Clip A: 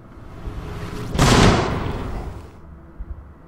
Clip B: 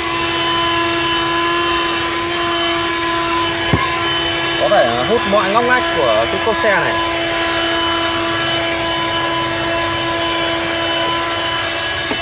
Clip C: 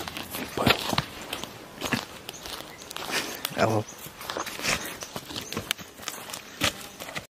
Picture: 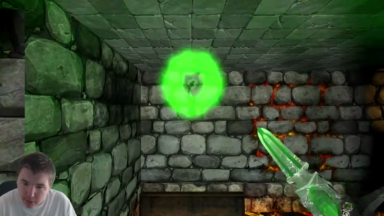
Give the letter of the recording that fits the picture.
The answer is A